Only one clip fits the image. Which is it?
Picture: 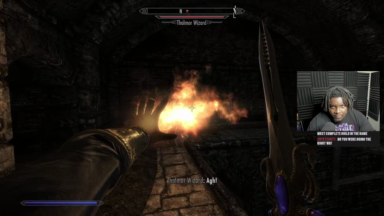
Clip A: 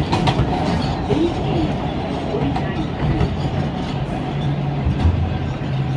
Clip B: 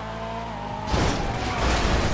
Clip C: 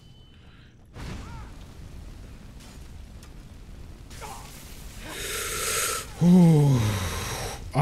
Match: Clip C